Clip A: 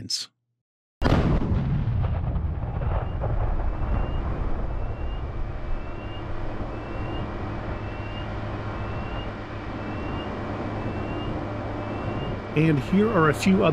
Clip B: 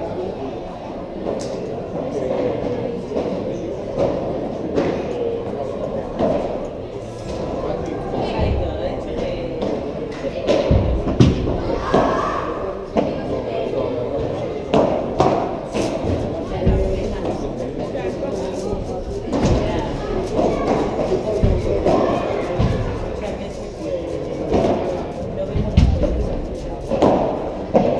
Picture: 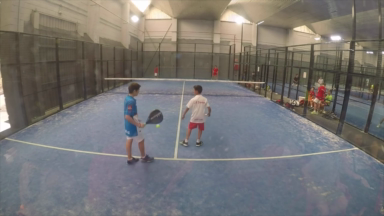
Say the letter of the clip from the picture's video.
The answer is B